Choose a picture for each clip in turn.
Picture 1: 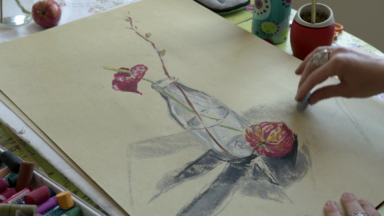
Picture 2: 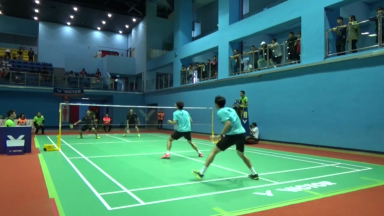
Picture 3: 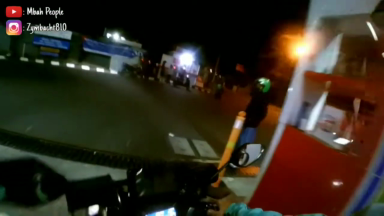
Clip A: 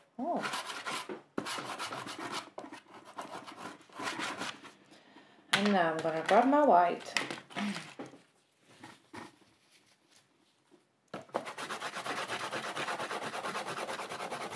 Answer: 1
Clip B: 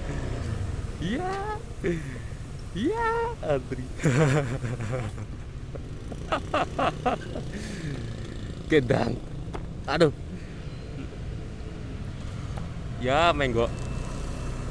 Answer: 3